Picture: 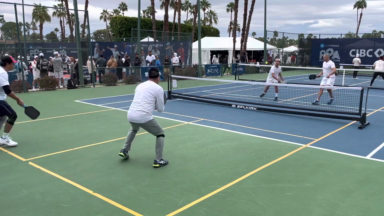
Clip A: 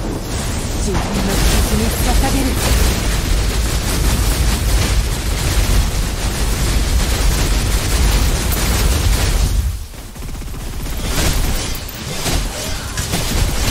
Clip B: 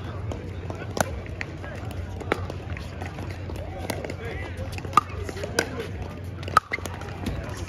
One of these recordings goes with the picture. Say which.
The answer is B